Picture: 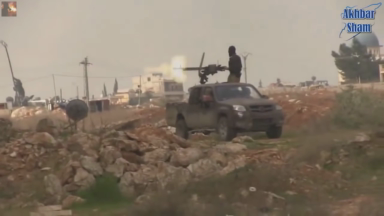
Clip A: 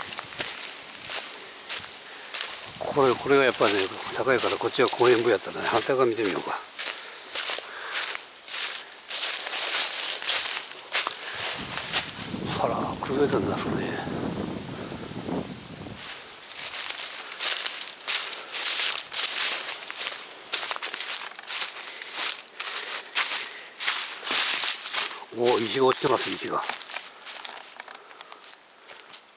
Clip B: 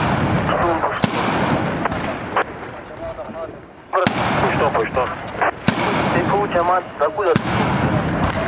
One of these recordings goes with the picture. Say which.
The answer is B